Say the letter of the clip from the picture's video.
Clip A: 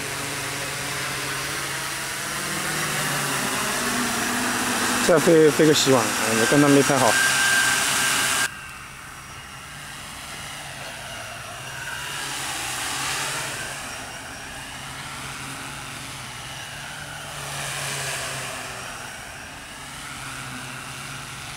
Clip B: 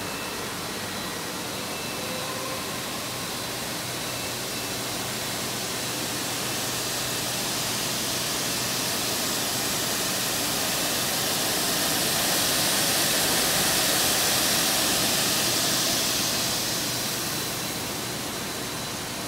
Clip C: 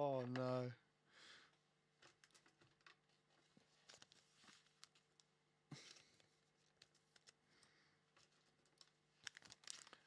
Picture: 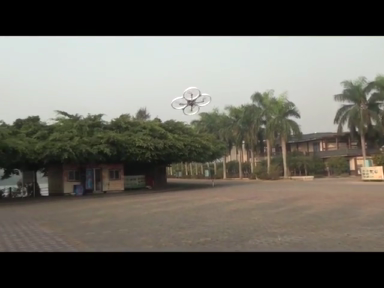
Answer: A